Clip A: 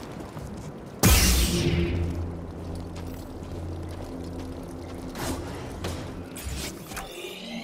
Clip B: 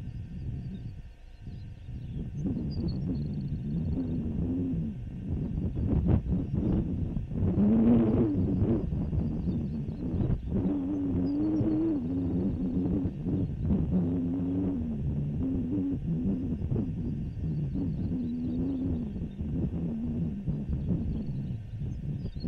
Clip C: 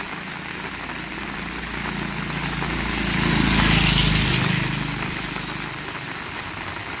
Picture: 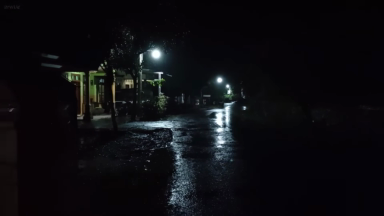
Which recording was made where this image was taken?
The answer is C